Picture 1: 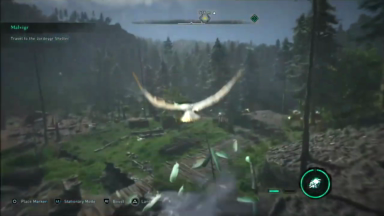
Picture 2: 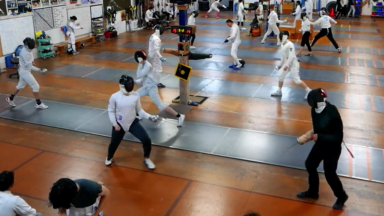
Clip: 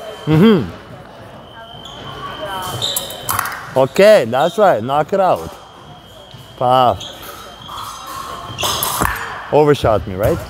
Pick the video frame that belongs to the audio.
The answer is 2